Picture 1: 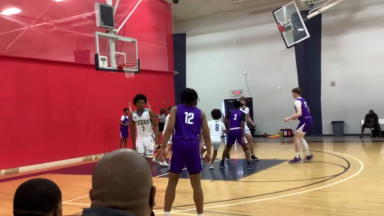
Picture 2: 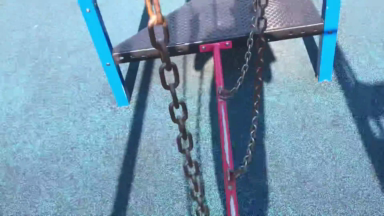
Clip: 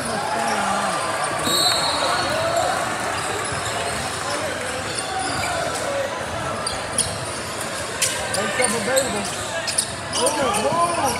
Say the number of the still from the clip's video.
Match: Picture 1